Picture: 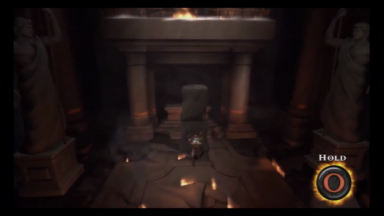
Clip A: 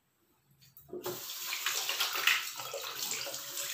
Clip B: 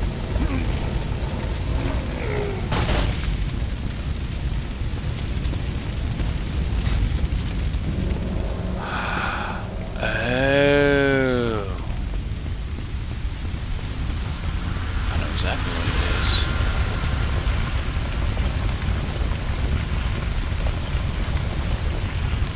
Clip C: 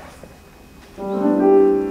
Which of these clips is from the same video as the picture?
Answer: B